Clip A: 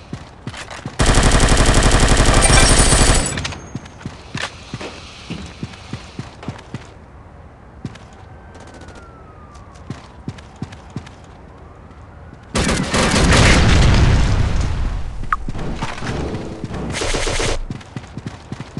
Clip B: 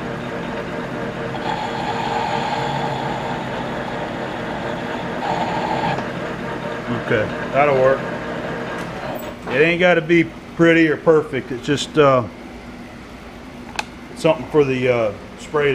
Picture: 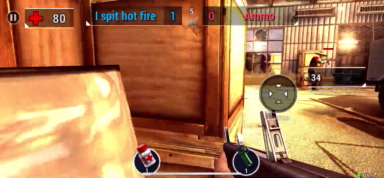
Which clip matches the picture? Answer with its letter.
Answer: A